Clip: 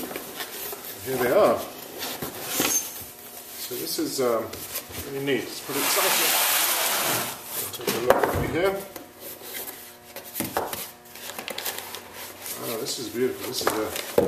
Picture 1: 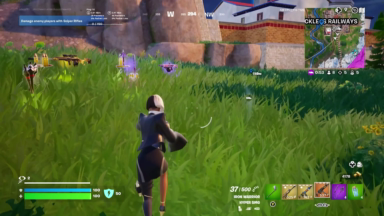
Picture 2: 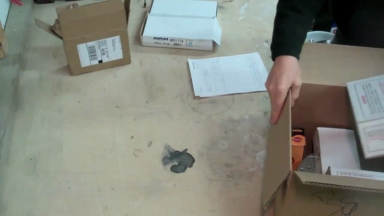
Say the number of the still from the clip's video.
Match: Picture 2